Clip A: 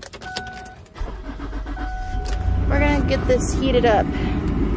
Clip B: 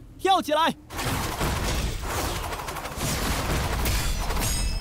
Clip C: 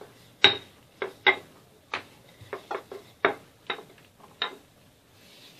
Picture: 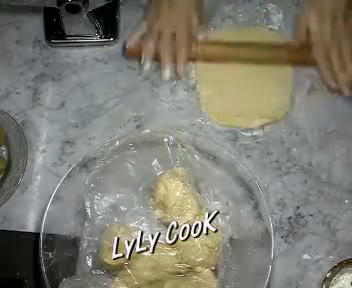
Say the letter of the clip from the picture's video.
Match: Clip C